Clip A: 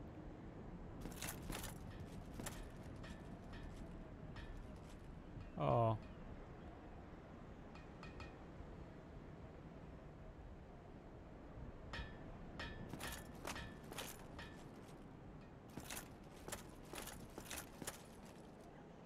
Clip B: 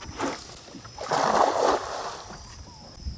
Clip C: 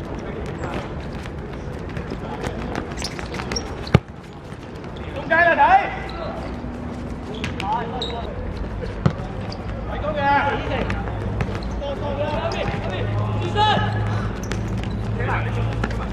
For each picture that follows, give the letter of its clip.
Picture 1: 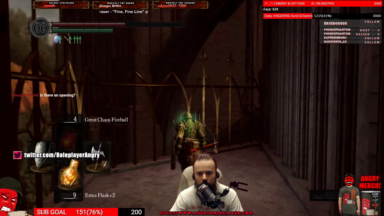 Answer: A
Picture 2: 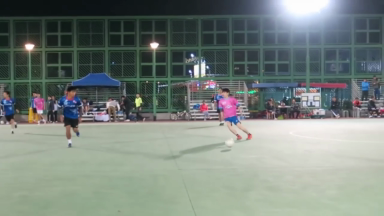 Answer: C